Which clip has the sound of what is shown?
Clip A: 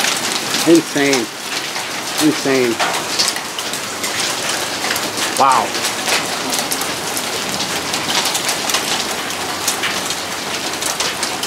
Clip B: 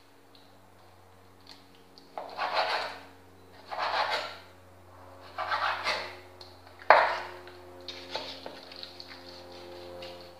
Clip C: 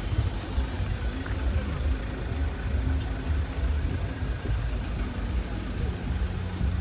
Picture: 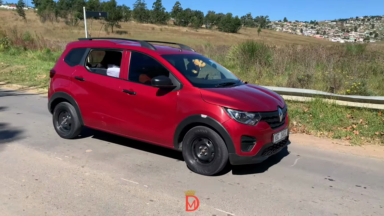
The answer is C